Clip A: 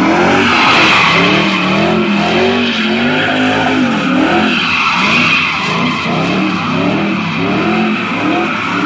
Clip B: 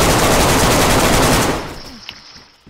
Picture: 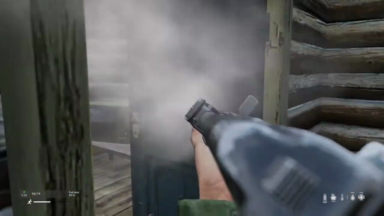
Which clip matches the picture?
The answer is B